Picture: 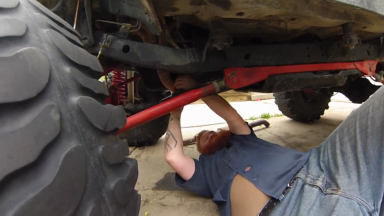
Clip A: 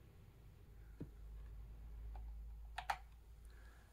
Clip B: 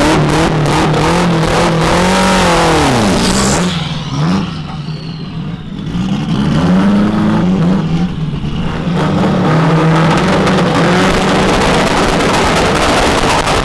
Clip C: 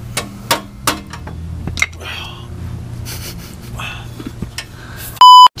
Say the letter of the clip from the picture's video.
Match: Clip C